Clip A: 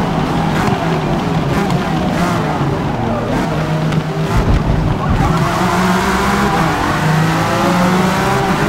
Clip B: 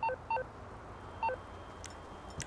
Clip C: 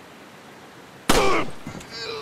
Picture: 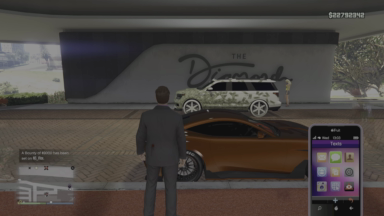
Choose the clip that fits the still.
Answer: B